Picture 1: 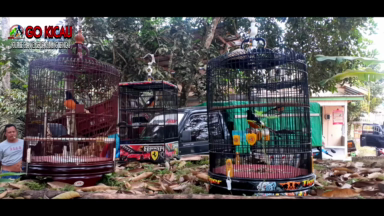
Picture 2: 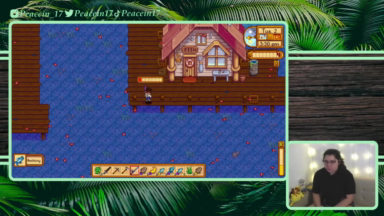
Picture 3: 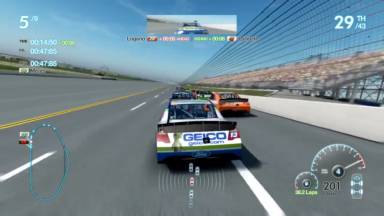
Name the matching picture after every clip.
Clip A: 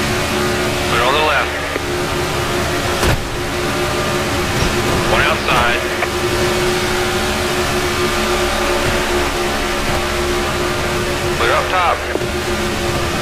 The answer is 3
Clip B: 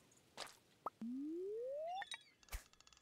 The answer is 2